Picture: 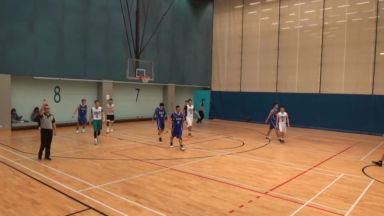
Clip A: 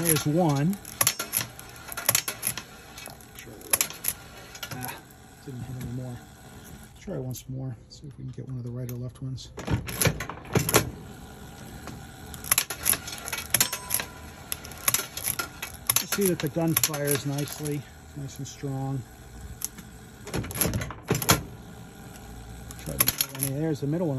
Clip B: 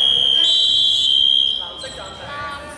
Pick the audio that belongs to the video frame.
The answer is B